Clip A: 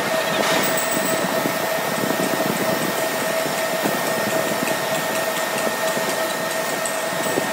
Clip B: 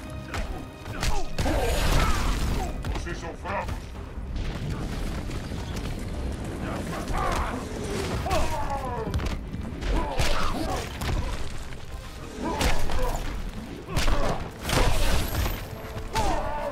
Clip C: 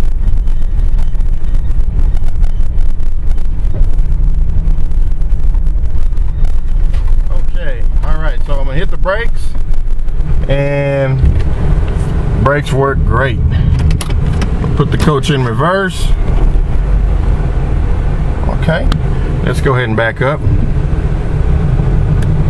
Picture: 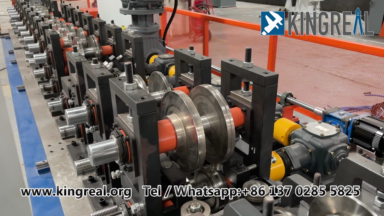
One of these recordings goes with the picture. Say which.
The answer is A